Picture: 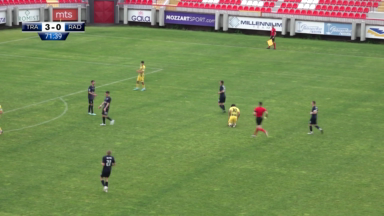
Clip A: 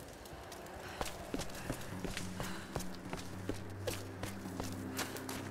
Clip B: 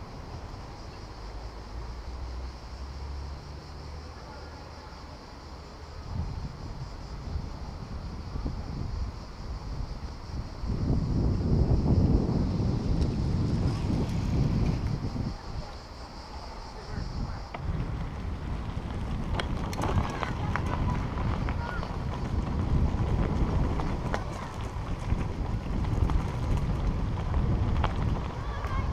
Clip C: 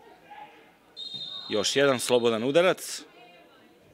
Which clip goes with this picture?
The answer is C